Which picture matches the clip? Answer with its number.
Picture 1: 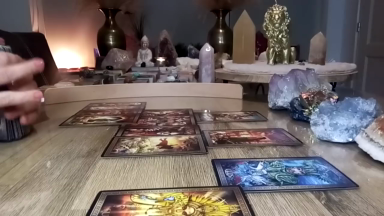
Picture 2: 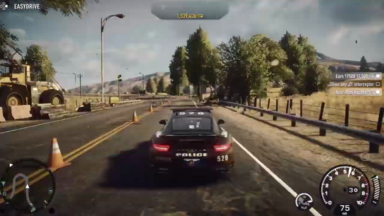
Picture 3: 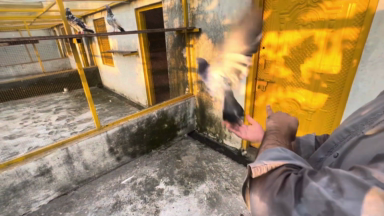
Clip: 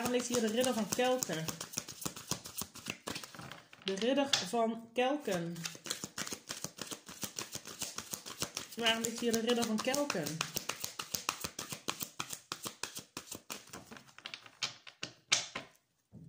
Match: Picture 1